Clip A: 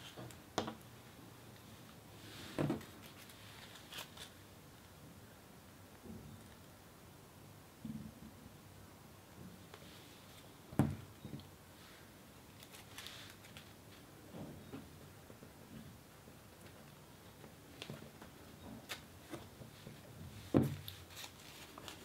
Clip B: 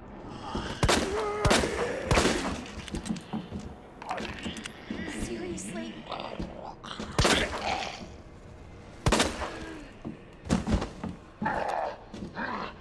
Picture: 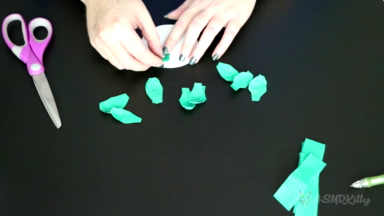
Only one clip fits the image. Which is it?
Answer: A